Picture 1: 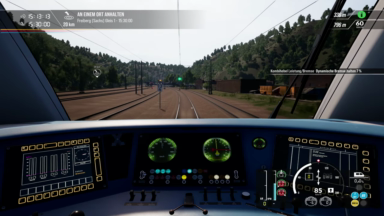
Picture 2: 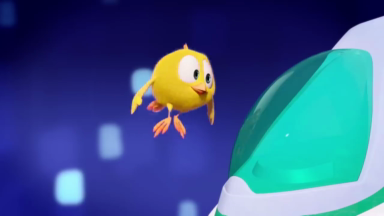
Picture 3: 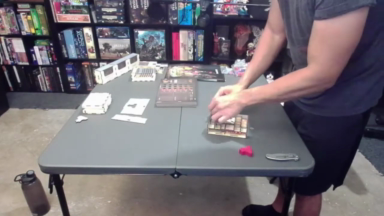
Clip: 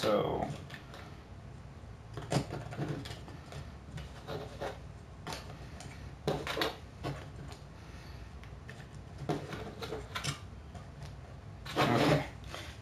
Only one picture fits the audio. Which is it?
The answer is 3